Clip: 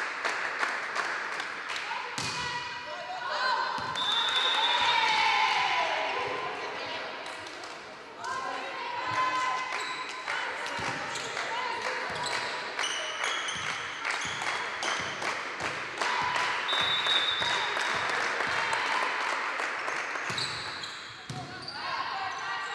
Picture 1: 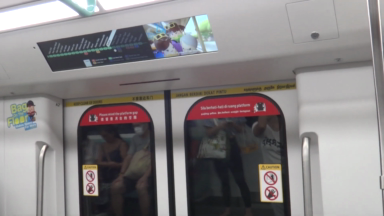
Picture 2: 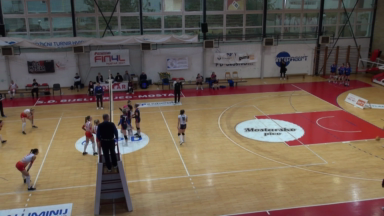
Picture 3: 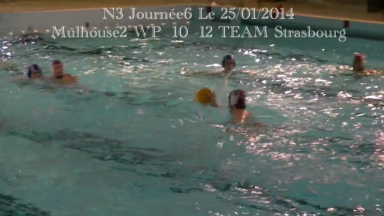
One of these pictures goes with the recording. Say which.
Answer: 2